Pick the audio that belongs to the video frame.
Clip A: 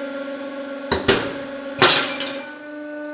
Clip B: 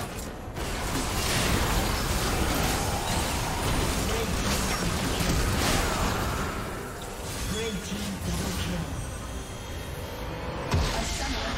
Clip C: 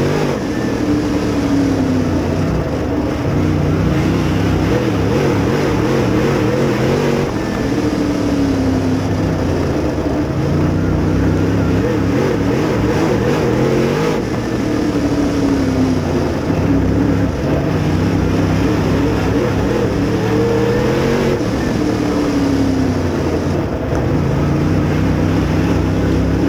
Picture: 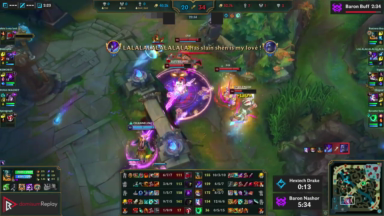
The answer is B